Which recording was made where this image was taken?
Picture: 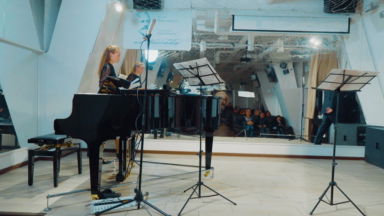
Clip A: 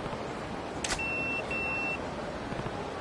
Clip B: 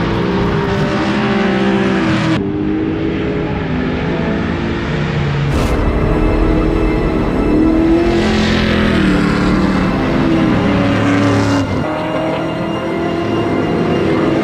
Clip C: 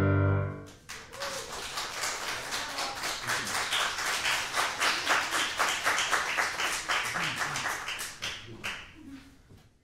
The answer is C